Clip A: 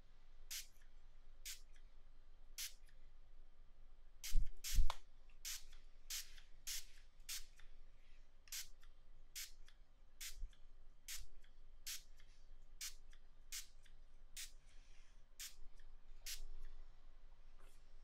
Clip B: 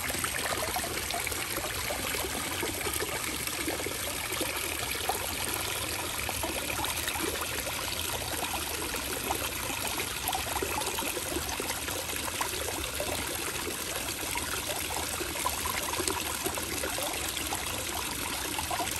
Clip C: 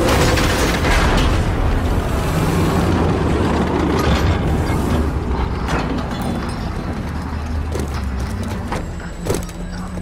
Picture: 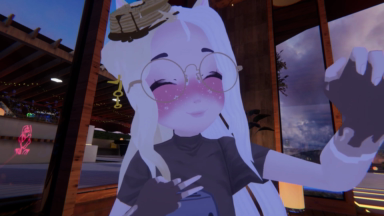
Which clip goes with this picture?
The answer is A